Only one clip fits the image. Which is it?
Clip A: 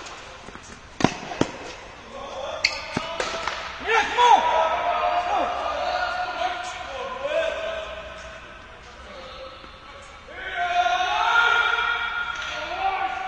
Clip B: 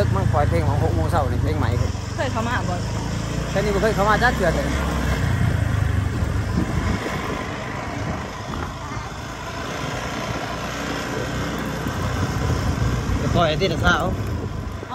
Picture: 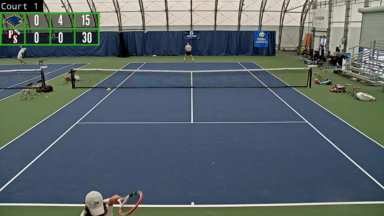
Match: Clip A